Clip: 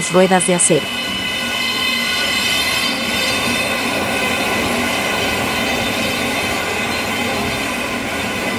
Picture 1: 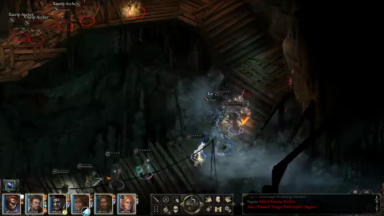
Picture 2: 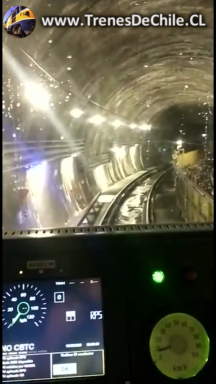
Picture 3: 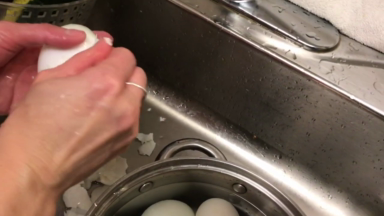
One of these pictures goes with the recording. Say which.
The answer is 2